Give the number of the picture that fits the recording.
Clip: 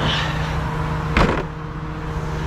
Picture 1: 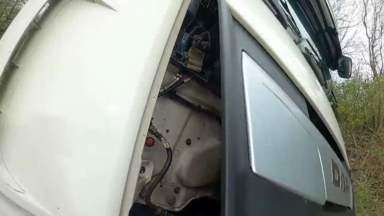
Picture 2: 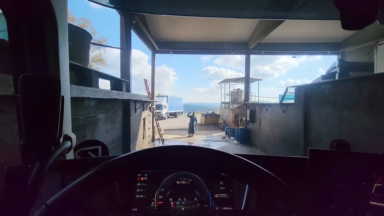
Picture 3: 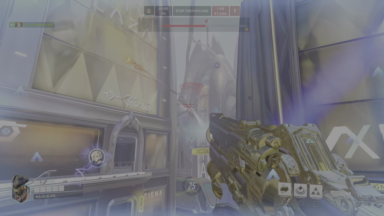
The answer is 1